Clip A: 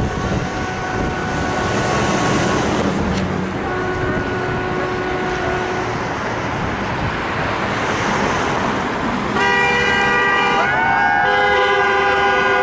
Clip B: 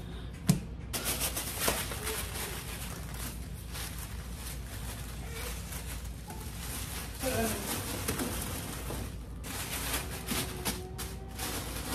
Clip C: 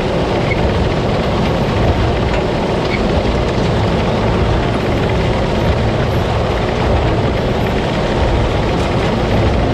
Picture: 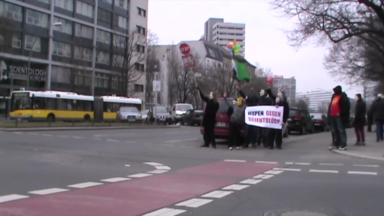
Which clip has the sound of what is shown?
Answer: A